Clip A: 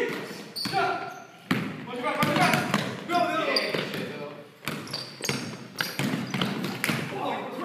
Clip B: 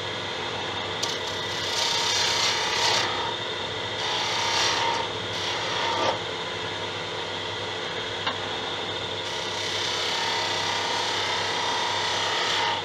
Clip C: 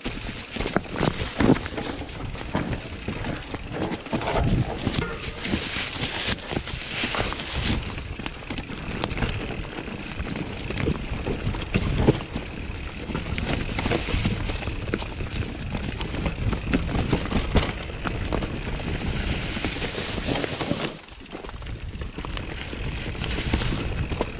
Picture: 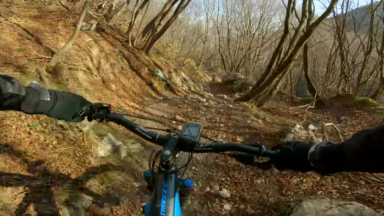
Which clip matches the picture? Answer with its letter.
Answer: C